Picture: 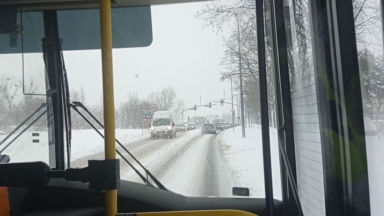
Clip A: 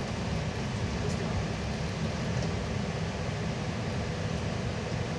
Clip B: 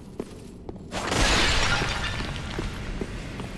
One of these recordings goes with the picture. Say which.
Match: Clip A